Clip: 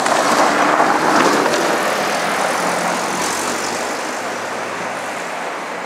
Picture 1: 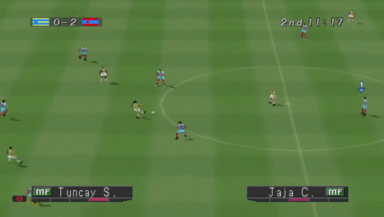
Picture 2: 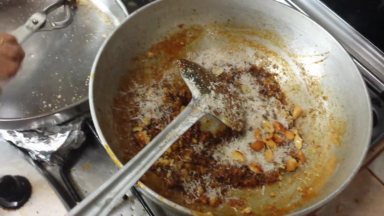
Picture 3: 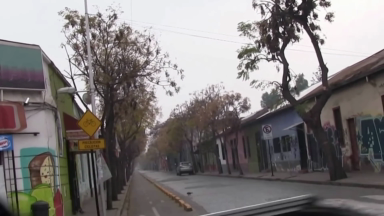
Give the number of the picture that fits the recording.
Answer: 3